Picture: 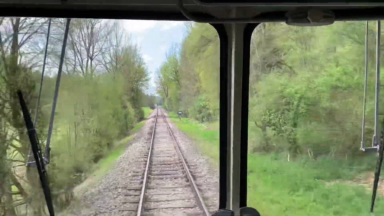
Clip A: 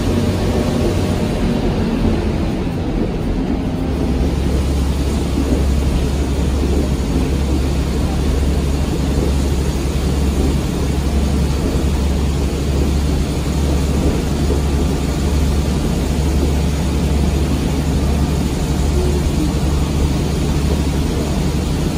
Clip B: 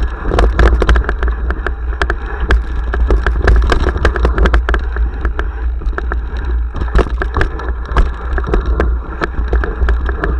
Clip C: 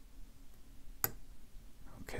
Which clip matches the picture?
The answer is A